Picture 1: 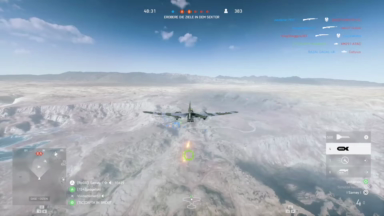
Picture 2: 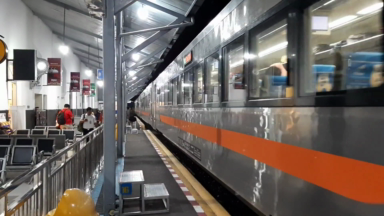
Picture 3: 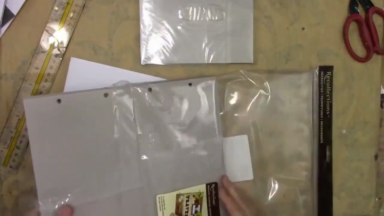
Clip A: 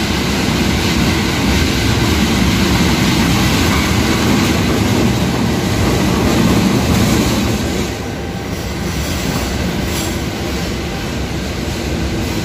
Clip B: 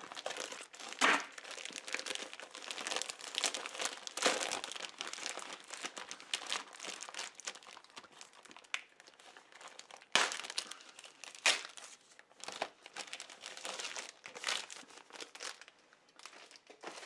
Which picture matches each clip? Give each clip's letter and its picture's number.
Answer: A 2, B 3